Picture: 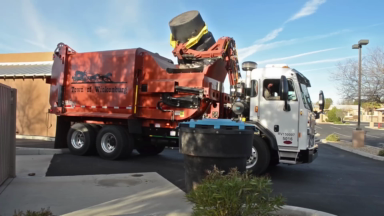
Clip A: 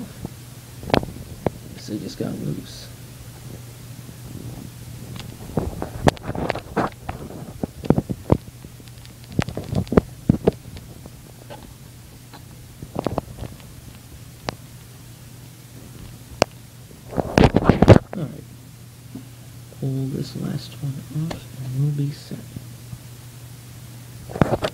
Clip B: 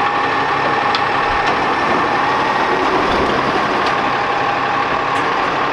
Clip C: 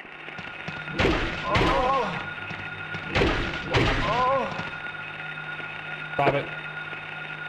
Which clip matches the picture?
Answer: B